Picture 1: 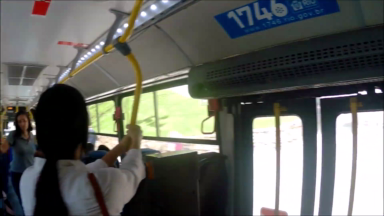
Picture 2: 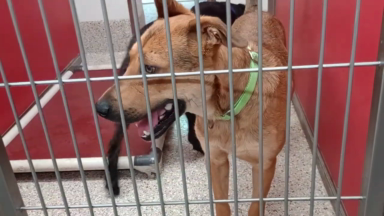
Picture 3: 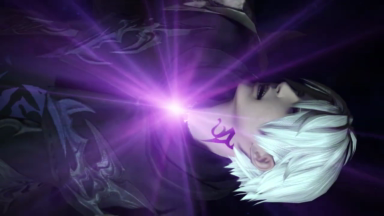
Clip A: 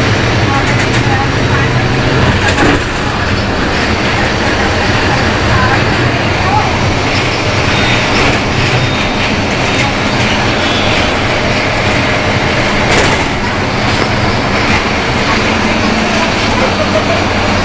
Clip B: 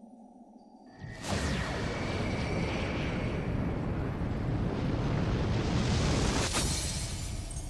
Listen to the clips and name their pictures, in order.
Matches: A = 1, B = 3